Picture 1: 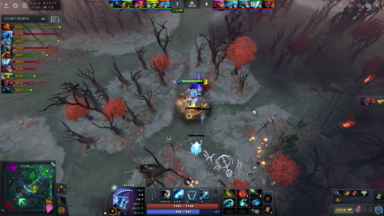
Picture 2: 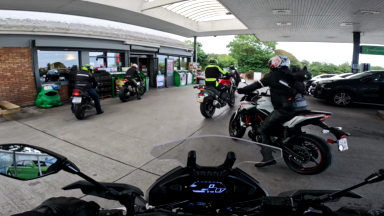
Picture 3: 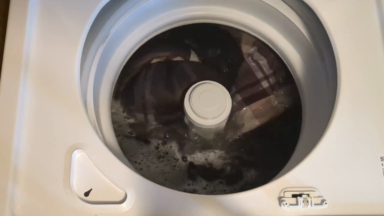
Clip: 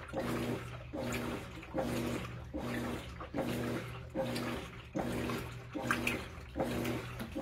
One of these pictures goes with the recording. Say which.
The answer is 3